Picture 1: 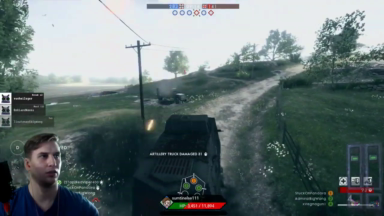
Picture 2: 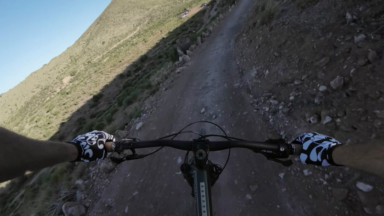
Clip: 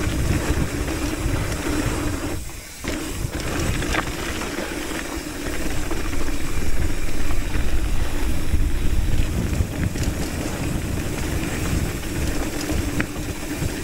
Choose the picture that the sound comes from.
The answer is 2